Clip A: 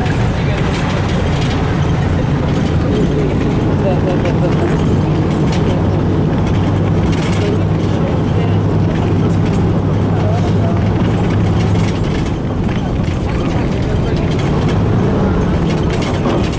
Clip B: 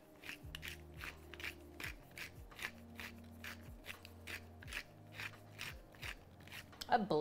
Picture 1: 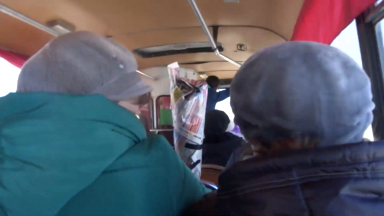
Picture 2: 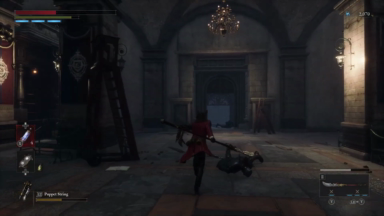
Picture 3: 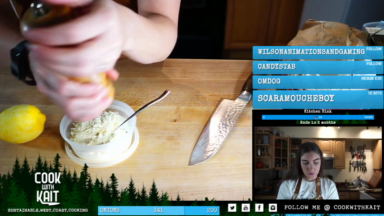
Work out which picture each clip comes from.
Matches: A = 1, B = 3